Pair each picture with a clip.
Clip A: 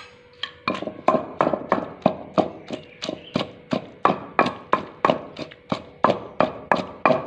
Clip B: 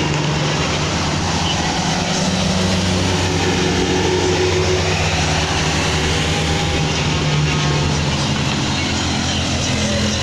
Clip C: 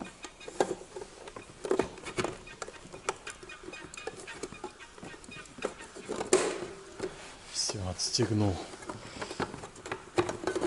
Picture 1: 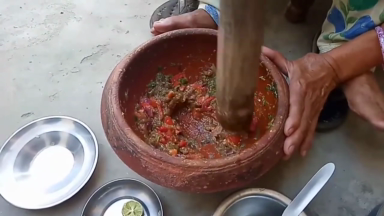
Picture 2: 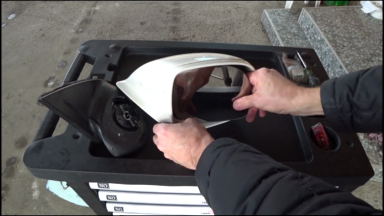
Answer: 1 A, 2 C